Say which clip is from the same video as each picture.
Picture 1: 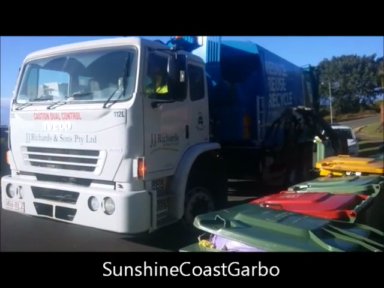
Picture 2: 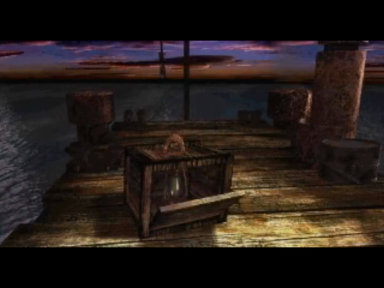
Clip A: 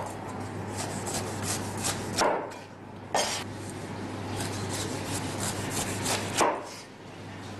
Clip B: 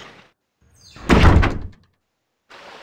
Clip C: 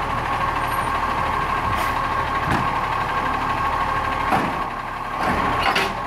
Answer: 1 C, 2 B